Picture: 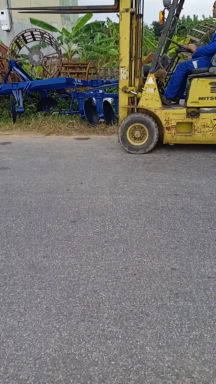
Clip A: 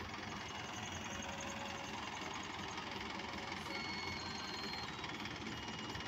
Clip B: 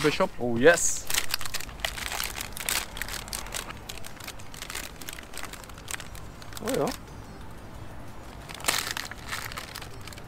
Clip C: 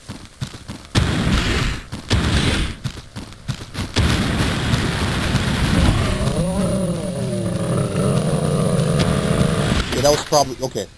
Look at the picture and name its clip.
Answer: A